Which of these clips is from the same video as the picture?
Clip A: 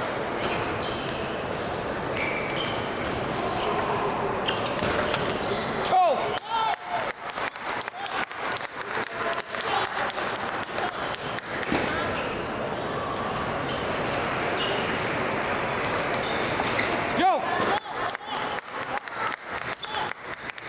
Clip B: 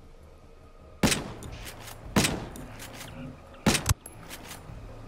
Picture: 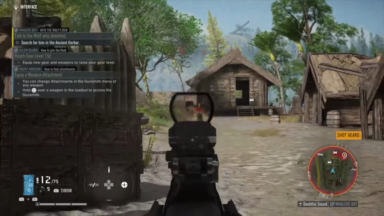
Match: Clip B